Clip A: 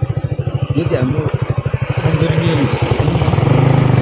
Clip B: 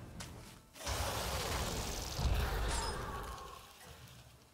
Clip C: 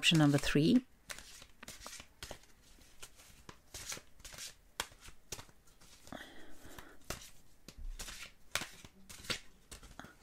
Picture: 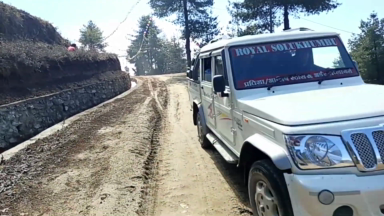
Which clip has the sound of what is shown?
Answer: A